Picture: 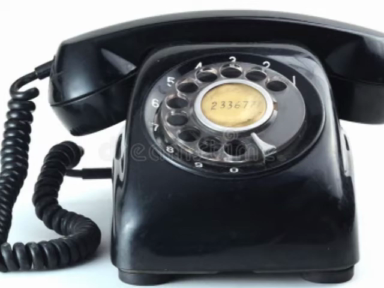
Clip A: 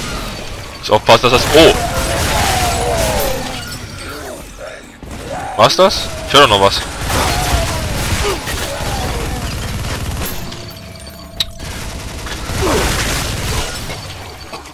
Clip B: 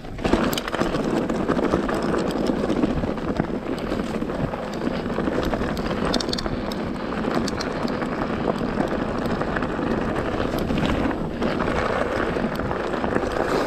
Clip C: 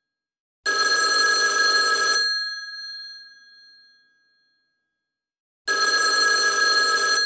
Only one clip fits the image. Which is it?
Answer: C